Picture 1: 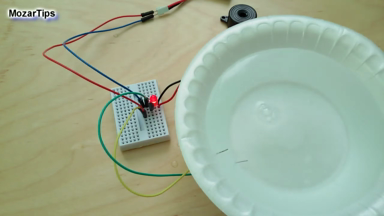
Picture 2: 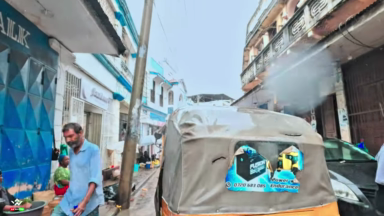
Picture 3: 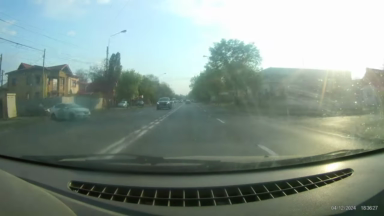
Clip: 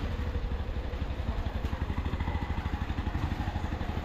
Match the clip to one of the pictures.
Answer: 2